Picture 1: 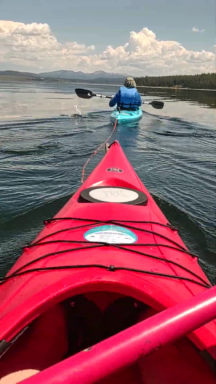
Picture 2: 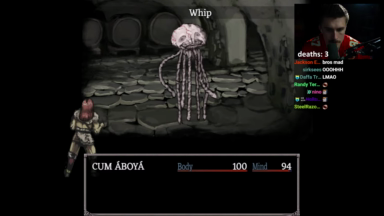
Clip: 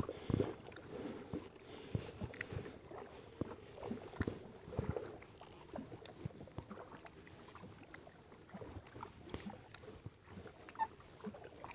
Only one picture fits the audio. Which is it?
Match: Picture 1